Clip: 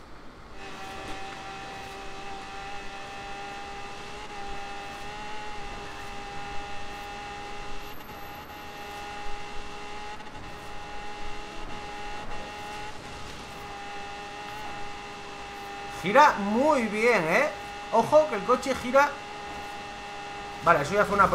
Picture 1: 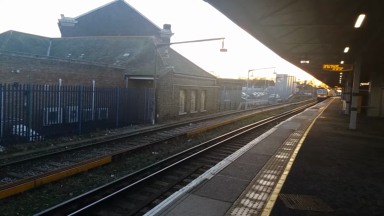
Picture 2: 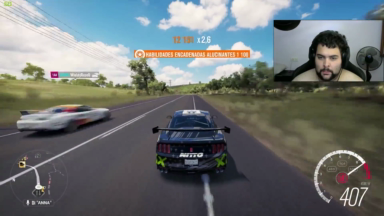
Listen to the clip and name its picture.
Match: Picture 2